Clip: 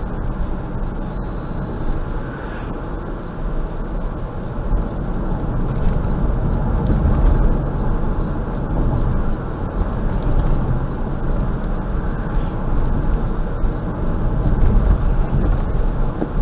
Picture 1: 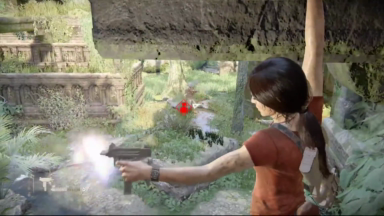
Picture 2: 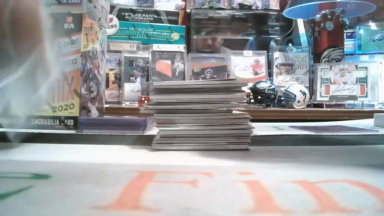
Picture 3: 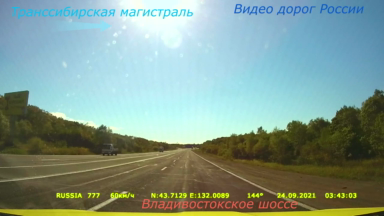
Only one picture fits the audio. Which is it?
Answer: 3